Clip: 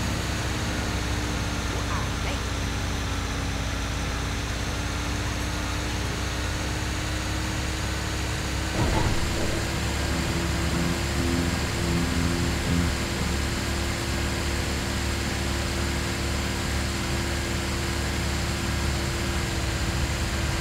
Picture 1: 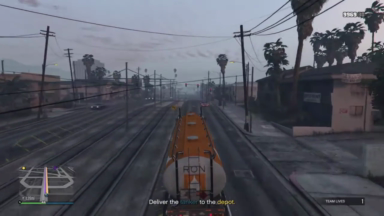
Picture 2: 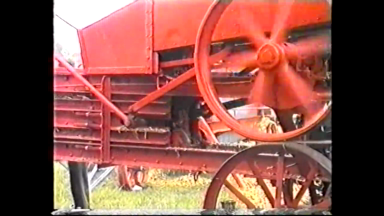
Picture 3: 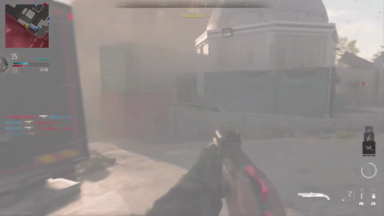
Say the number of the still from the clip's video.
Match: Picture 1